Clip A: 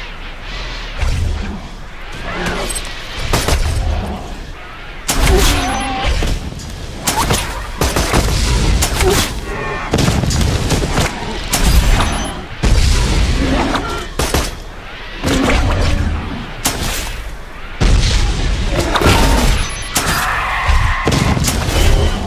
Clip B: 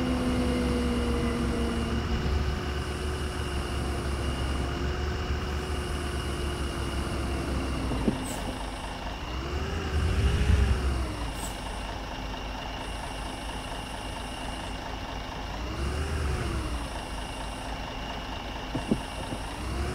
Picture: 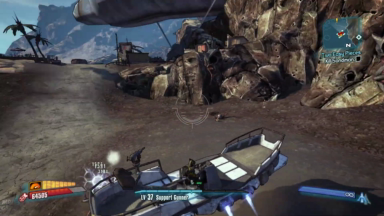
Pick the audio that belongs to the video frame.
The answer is A